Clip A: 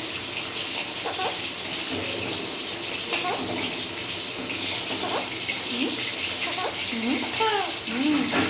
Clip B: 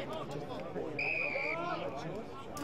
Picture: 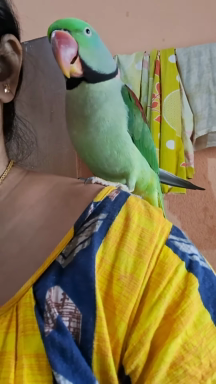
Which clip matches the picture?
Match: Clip A